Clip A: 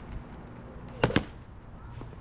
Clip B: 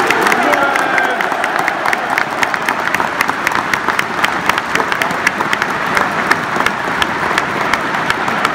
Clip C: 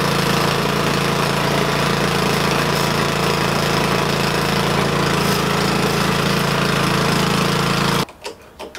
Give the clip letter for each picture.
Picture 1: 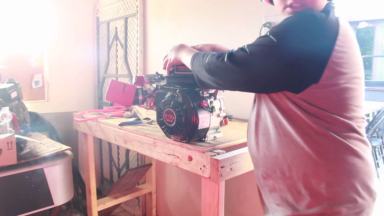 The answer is C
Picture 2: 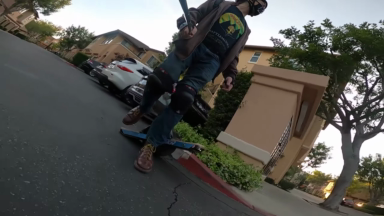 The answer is A